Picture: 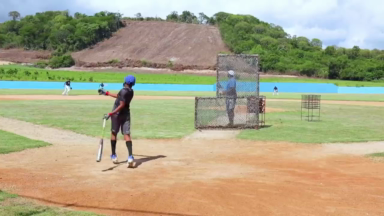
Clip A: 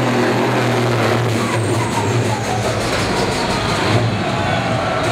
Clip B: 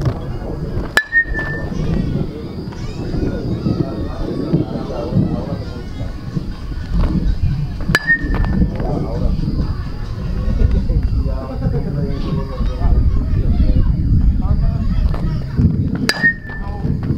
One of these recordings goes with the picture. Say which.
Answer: B